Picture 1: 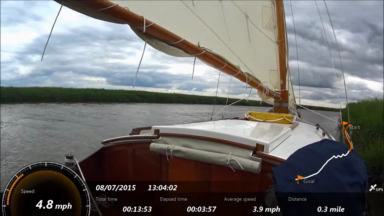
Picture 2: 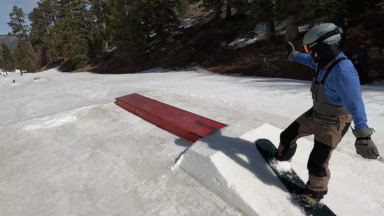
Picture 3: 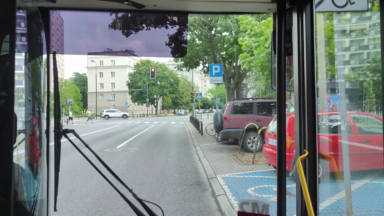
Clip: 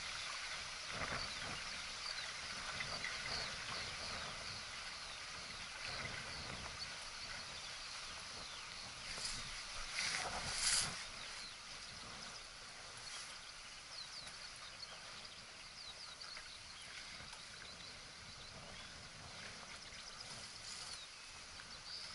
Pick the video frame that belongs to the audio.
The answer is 1